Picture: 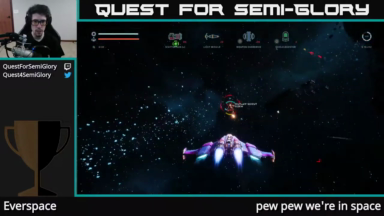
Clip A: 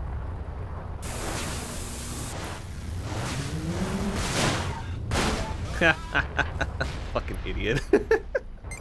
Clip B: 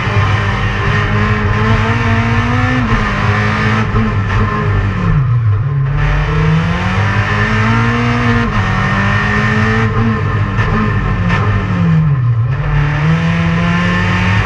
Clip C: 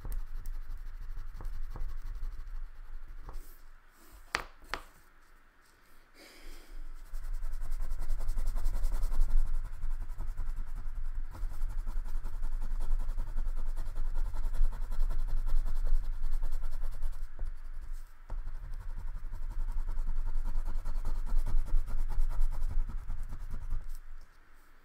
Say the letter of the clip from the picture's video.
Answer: A